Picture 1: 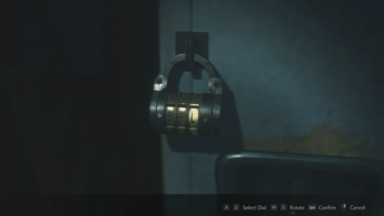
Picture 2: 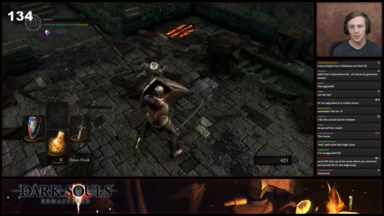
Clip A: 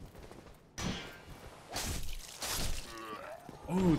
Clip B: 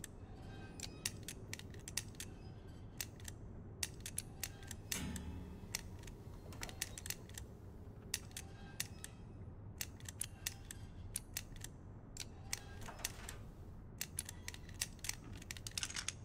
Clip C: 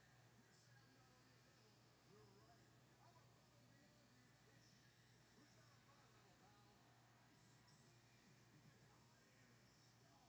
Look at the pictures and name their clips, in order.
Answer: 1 B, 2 A